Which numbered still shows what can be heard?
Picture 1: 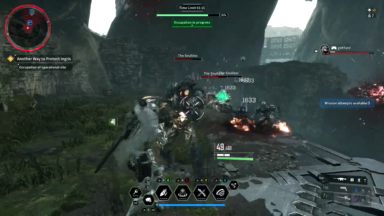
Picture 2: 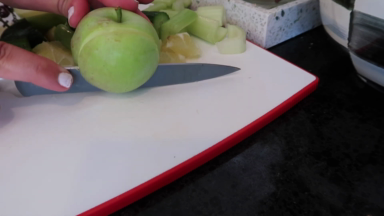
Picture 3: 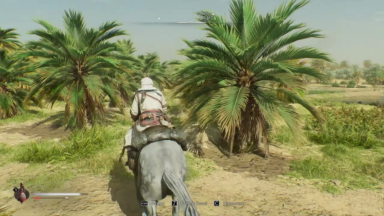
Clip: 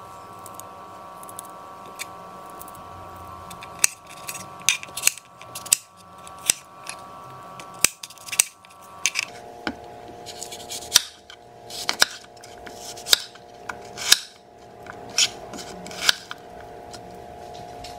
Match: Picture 2